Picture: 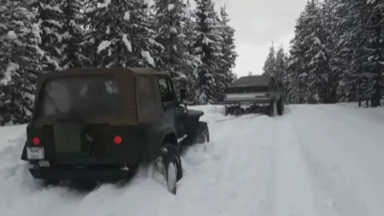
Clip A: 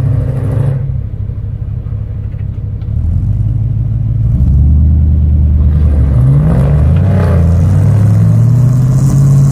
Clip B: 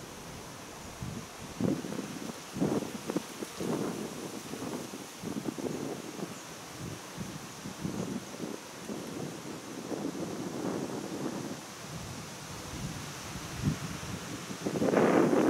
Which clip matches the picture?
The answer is A